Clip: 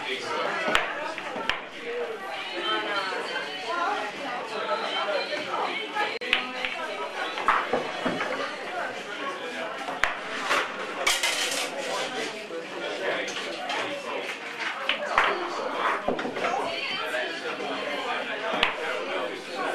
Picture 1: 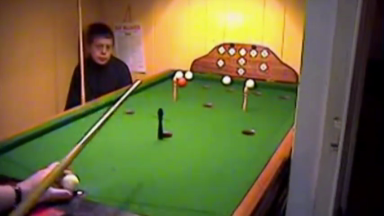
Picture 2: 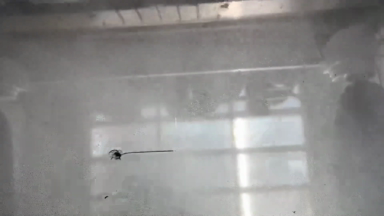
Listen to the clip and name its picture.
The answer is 1